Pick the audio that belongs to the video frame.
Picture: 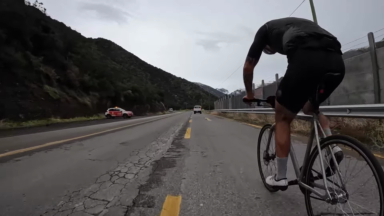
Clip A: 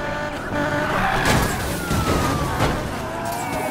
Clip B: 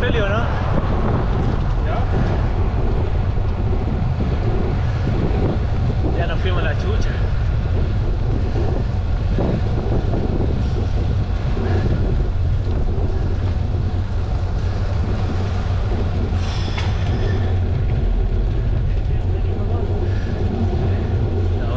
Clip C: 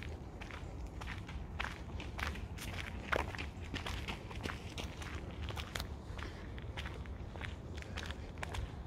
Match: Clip B